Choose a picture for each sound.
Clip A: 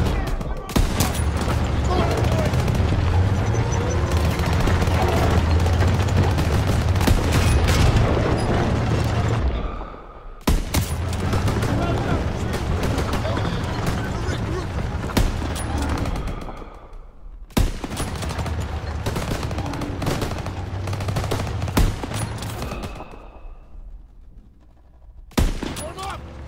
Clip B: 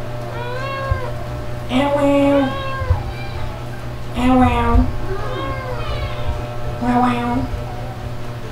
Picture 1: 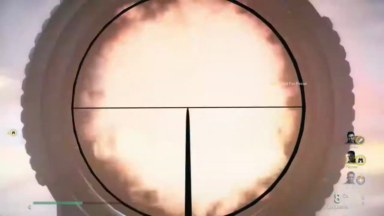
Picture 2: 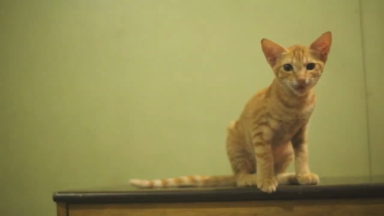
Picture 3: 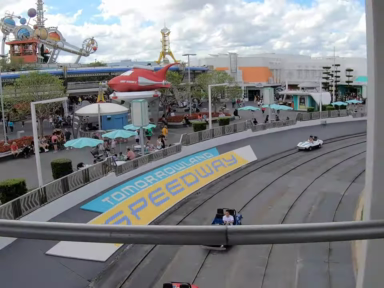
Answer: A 1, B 2